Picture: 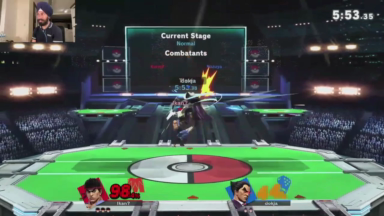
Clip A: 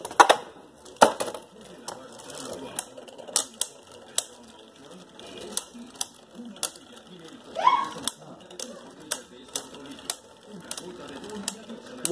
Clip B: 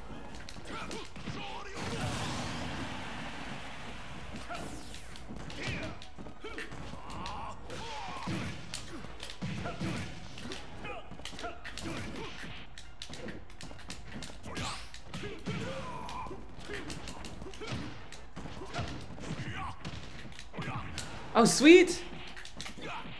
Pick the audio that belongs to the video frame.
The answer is B